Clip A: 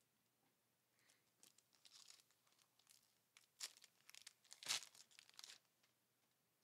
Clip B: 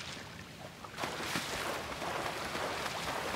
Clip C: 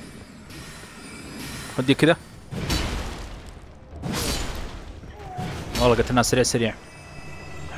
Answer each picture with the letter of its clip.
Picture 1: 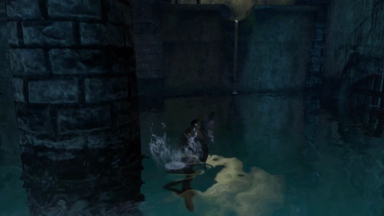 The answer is B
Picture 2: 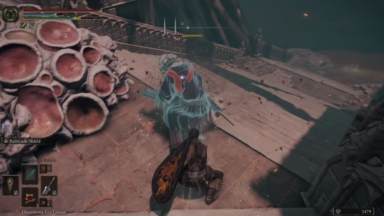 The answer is C